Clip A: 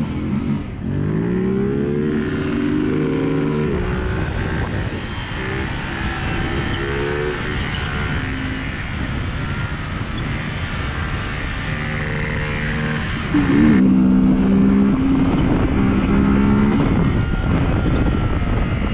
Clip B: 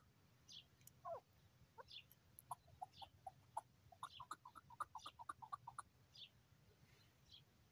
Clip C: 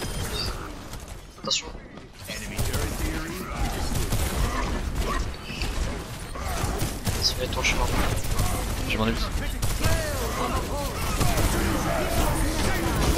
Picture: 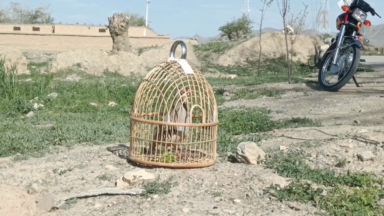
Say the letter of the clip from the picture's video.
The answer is B